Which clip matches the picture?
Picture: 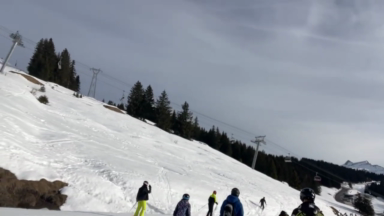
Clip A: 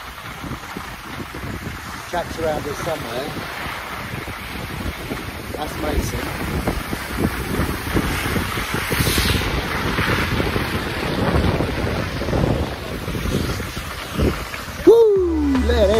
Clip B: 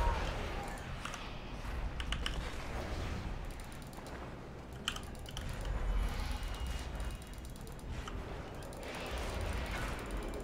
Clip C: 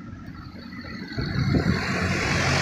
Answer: A